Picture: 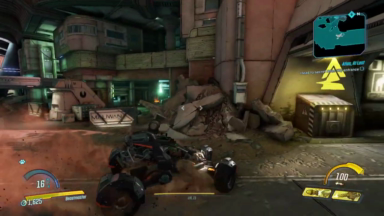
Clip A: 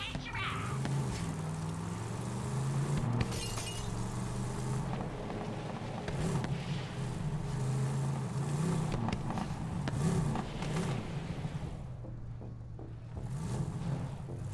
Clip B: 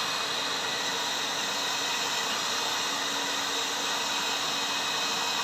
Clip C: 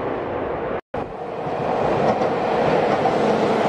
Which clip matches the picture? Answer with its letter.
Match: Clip A